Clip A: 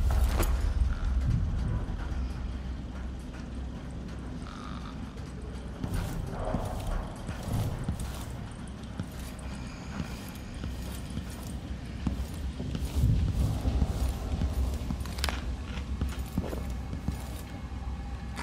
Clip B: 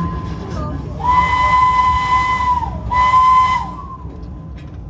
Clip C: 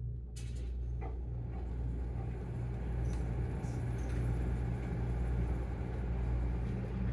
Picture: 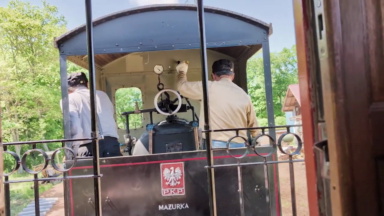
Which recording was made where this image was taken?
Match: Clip B